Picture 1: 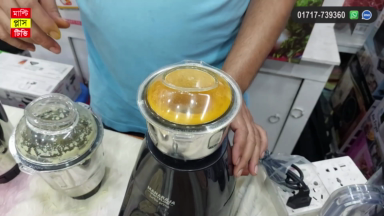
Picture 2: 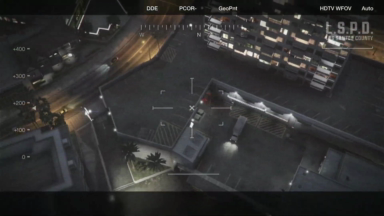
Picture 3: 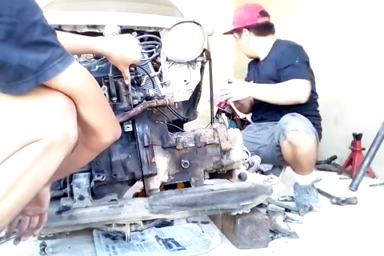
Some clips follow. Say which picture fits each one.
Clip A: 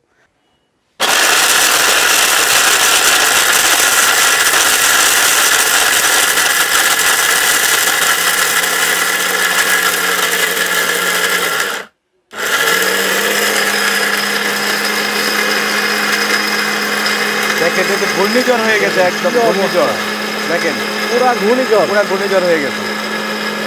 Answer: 1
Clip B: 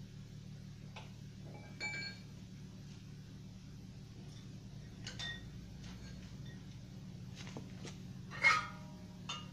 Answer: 3